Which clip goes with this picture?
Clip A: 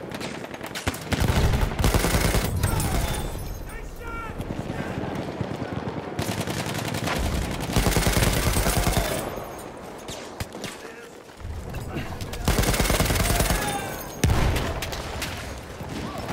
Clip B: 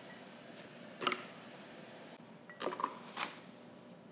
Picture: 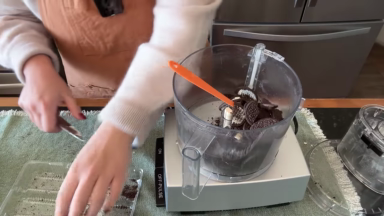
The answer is B